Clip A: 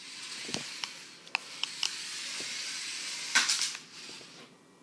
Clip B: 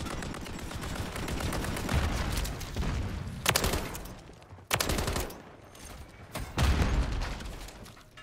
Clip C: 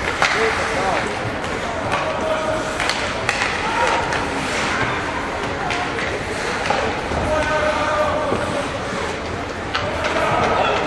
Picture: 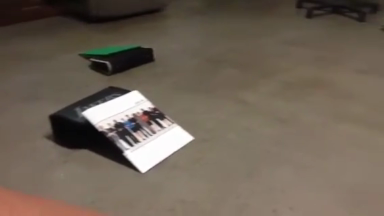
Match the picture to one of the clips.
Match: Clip A